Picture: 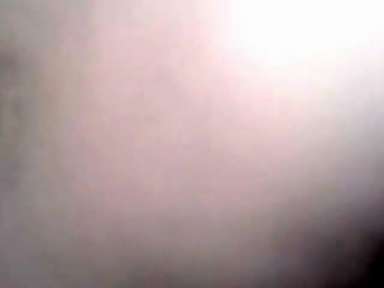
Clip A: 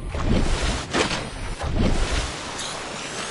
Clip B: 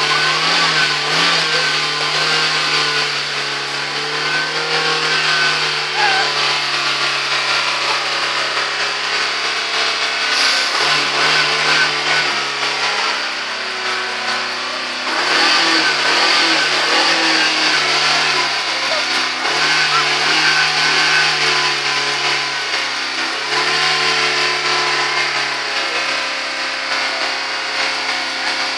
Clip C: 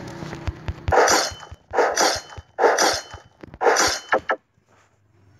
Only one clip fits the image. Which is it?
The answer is B